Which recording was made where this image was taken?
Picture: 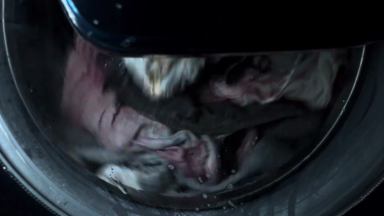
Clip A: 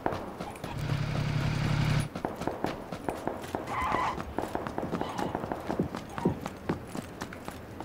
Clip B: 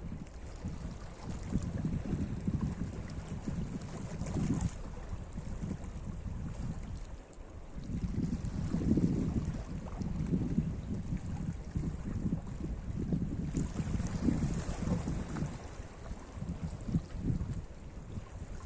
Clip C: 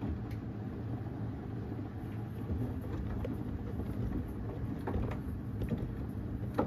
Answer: C